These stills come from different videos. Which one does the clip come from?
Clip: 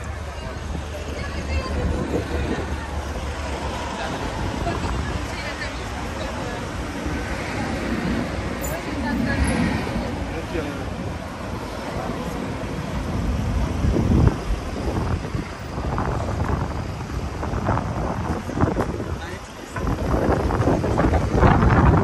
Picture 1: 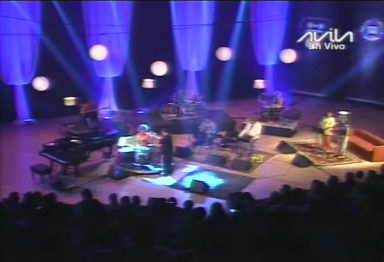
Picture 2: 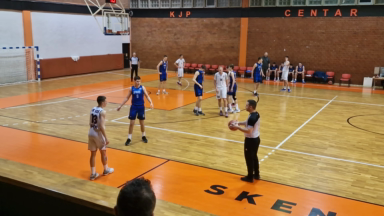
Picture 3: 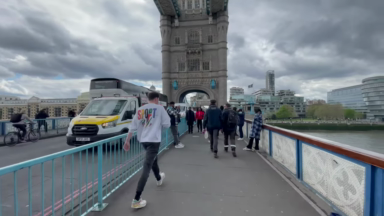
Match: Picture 3